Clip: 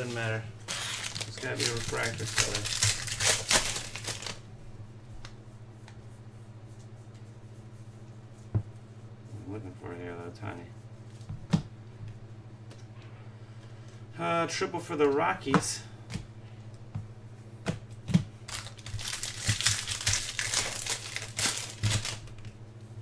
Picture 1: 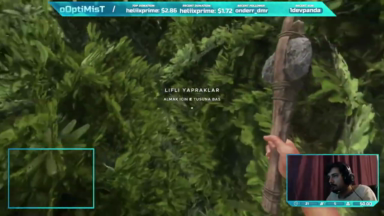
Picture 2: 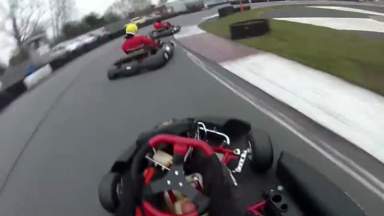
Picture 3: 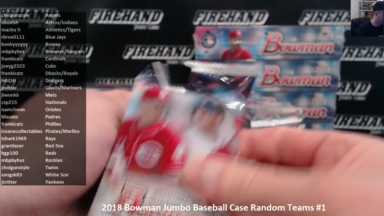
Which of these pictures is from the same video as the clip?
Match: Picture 3